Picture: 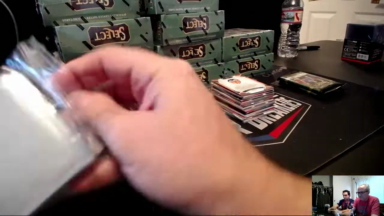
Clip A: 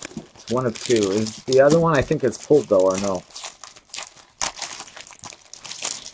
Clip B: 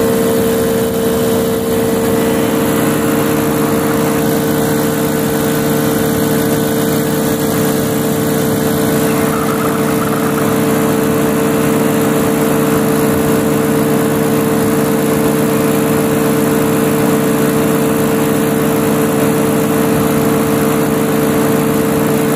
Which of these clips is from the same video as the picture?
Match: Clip A